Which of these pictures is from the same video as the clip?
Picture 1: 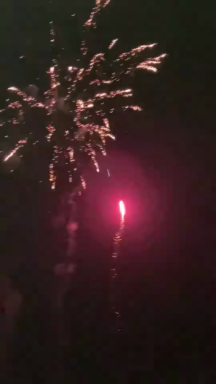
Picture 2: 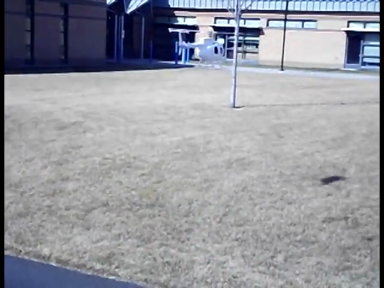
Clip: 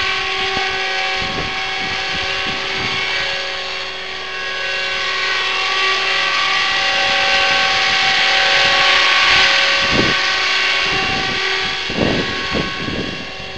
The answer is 2